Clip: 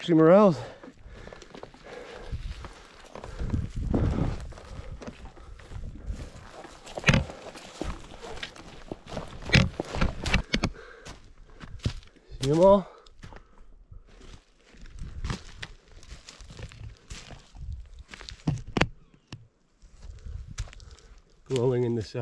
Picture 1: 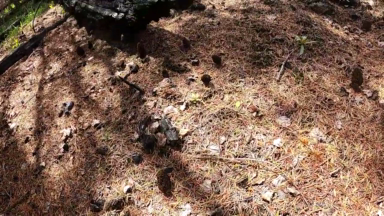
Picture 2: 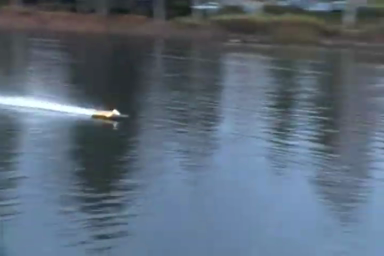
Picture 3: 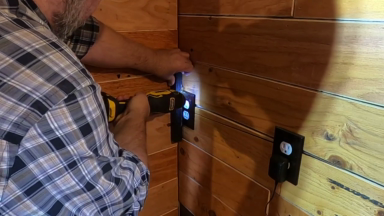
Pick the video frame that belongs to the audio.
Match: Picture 1